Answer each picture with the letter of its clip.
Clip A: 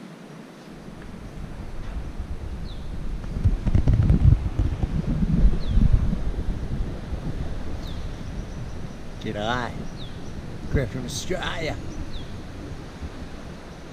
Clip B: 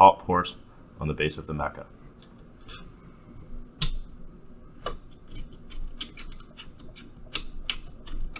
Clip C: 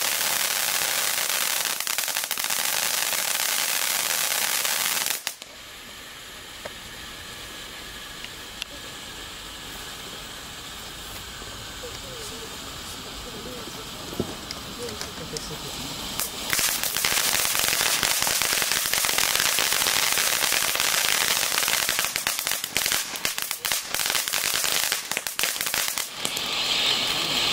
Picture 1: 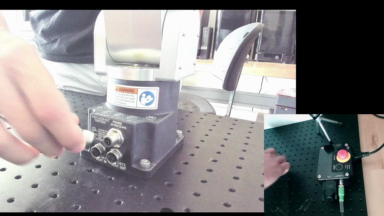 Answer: B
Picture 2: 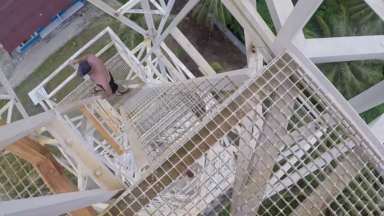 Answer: A